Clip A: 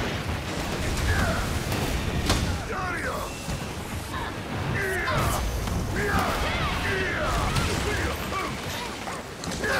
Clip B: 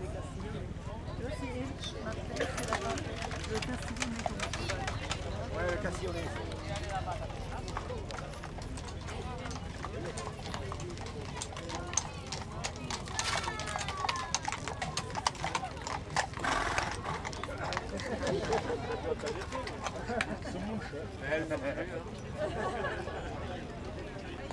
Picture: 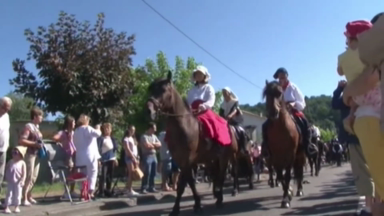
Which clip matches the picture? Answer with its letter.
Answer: B